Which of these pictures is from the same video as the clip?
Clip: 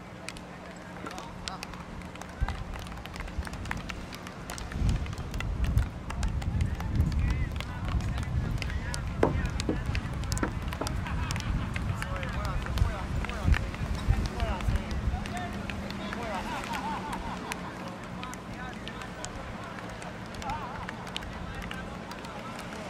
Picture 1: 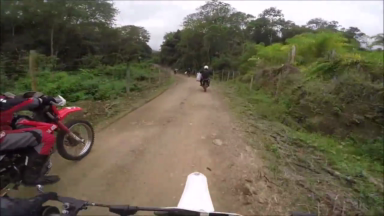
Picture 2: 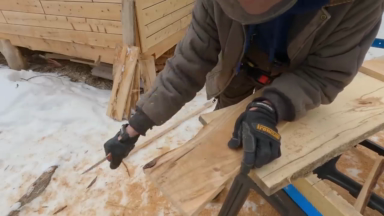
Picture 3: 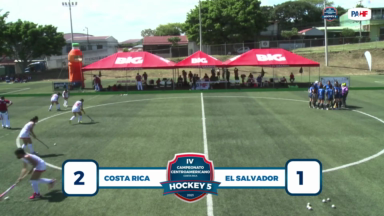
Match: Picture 3